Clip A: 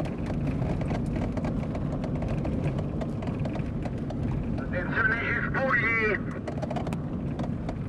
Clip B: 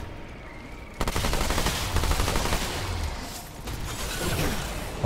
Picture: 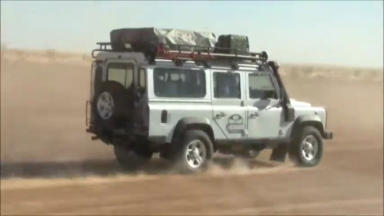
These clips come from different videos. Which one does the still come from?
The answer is A